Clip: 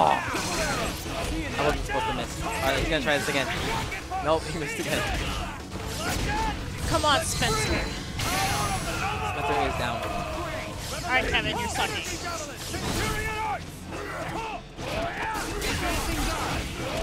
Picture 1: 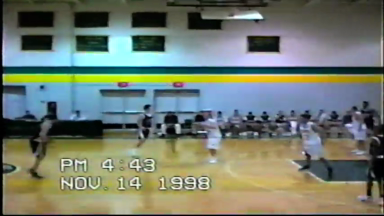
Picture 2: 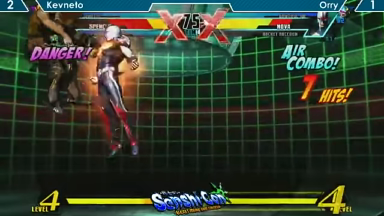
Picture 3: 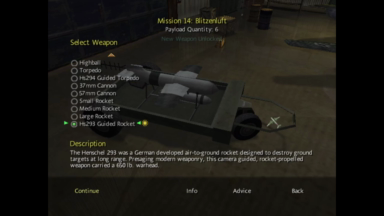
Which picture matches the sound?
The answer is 2